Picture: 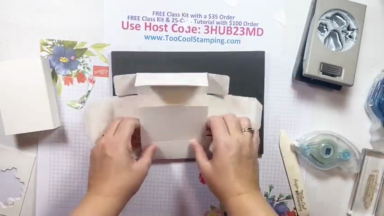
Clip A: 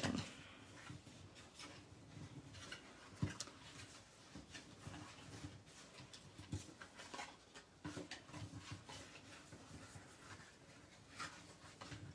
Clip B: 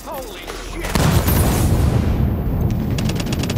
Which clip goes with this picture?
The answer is A